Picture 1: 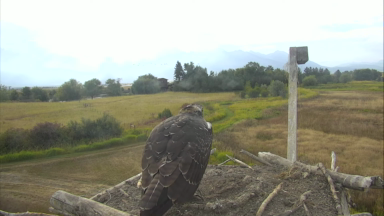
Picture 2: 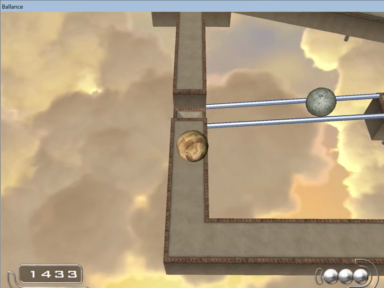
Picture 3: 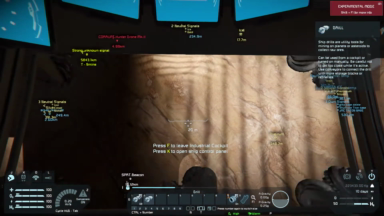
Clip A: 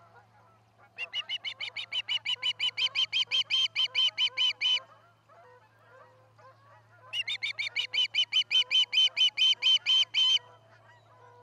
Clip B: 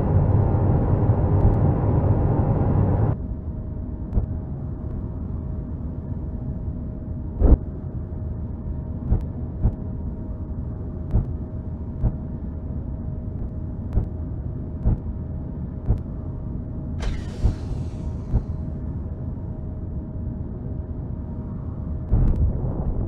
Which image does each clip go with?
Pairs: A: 1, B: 3